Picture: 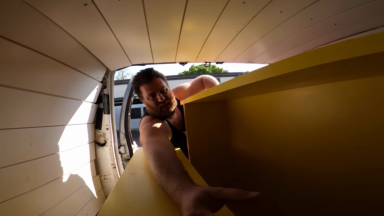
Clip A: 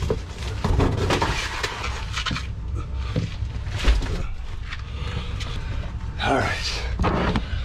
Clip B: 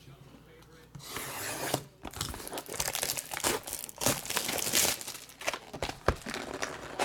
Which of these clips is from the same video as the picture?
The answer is A